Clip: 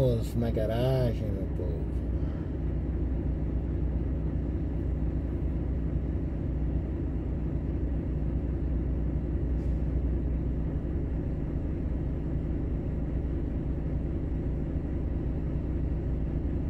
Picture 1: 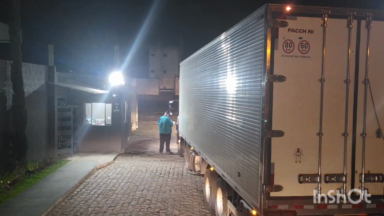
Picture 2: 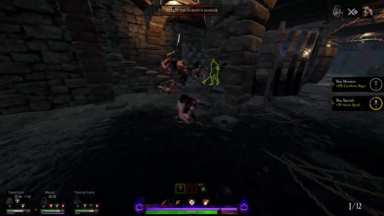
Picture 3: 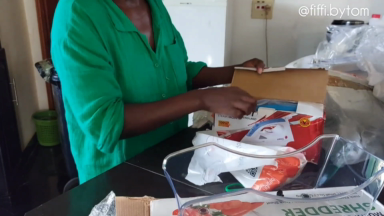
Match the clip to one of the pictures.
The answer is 1